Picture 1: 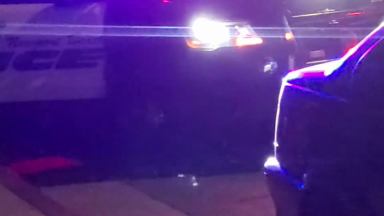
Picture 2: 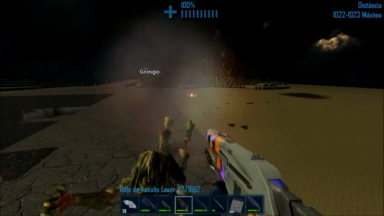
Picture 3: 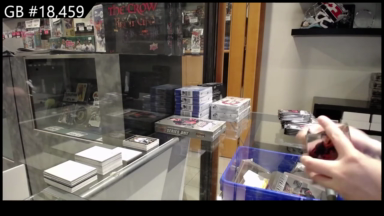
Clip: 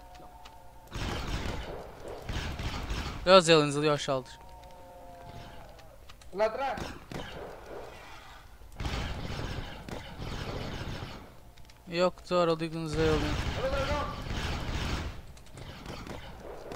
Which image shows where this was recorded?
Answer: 2